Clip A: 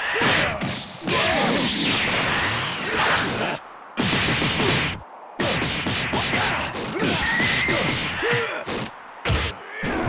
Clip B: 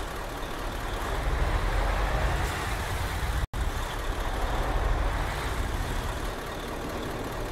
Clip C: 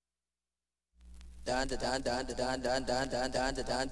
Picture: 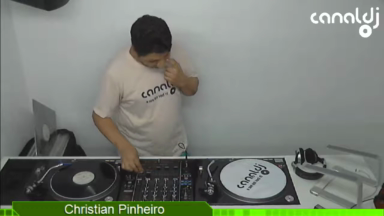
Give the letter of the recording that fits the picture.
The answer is C